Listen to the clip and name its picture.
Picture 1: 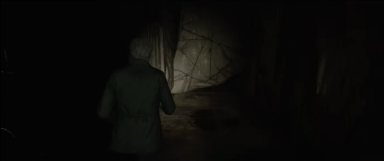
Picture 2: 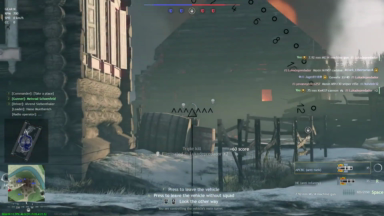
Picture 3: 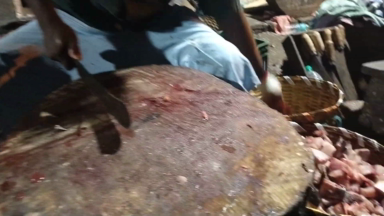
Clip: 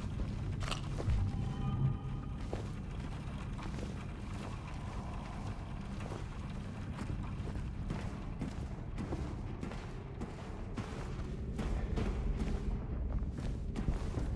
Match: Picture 1